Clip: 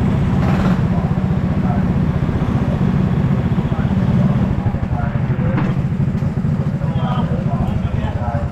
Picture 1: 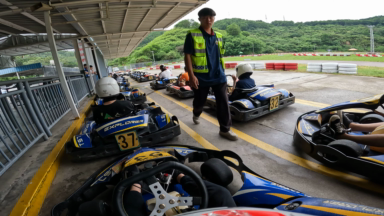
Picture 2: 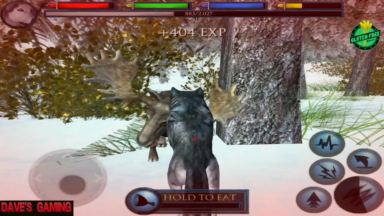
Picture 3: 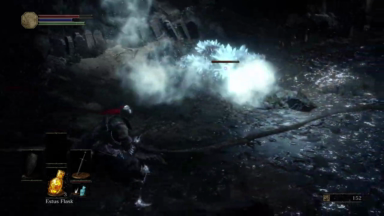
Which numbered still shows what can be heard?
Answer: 1